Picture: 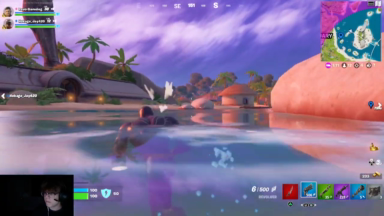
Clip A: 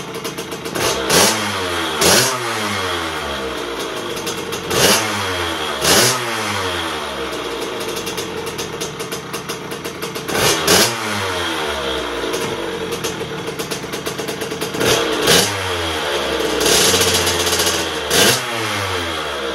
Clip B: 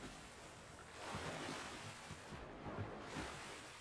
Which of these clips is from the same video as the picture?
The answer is B